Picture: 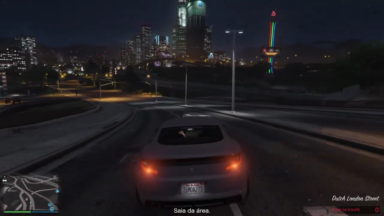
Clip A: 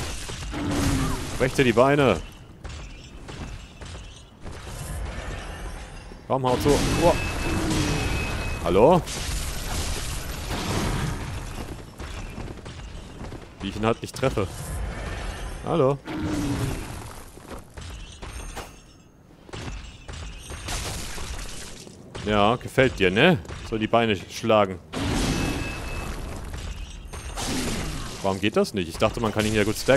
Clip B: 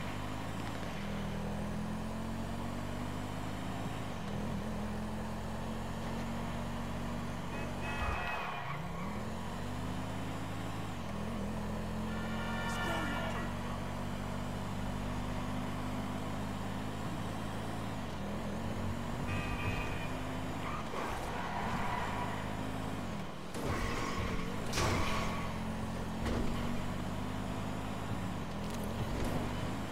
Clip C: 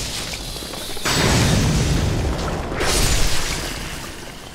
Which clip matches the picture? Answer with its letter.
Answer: B